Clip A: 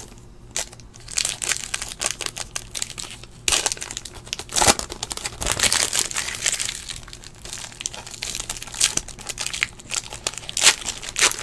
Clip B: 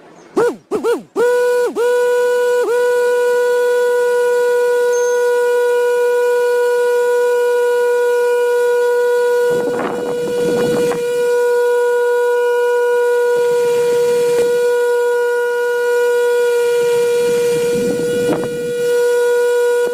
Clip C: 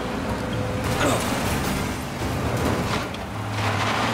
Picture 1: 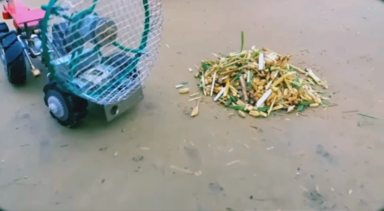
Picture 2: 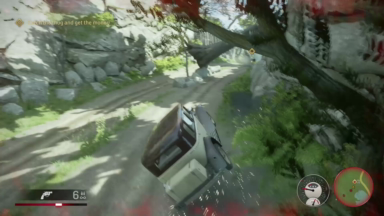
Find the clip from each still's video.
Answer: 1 B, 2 C